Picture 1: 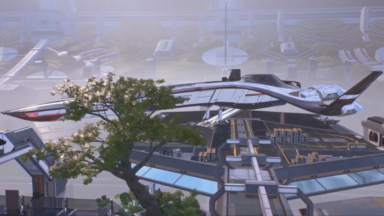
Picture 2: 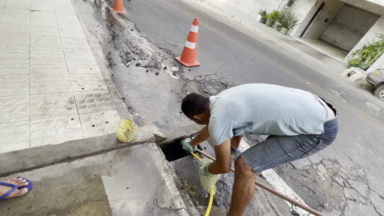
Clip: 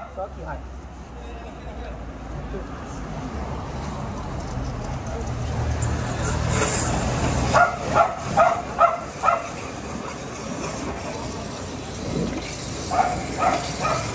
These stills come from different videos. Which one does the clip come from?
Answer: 2